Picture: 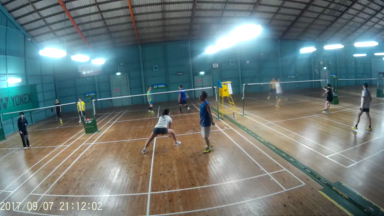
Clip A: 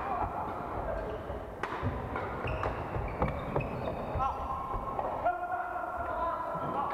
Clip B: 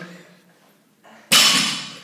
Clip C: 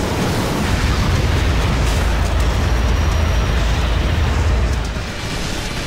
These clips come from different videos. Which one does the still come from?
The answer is A